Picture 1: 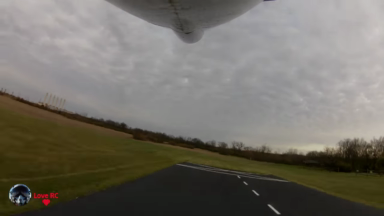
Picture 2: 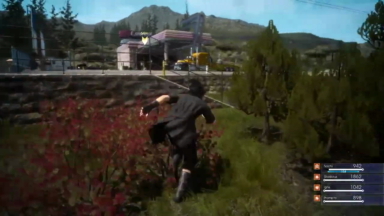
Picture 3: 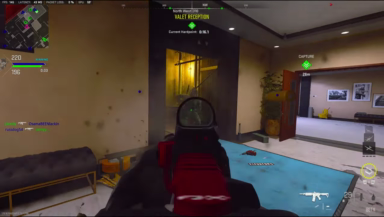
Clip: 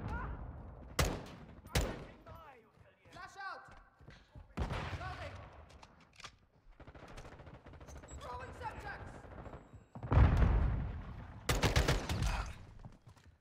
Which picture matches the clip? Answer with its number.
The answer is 3